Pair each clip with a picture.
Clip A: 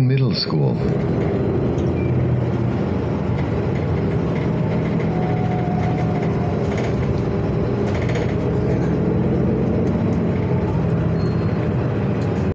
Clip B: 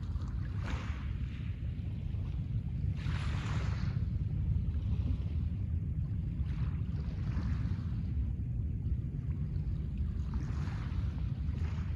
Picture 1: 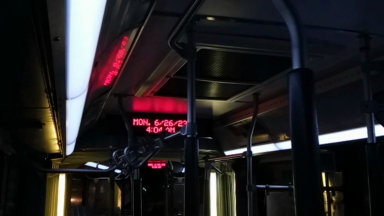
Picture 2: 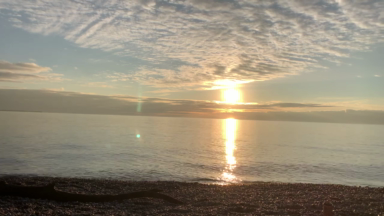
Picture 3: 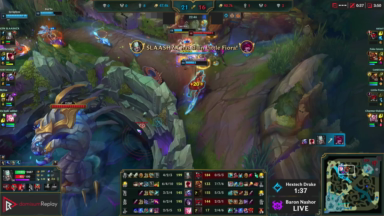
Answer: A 1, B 2